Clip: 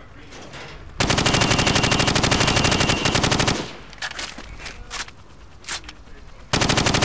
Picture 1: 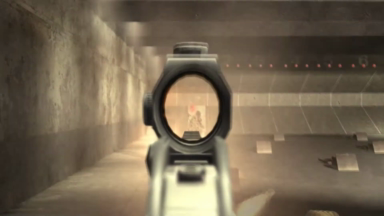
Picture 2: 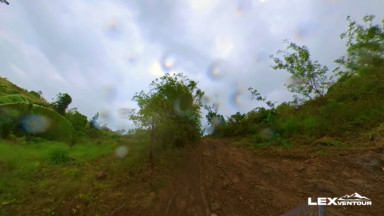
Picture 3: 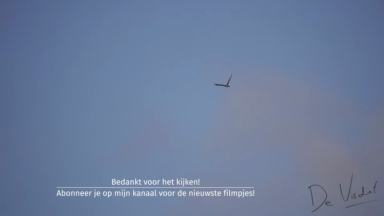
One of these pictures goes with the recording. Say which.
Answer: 1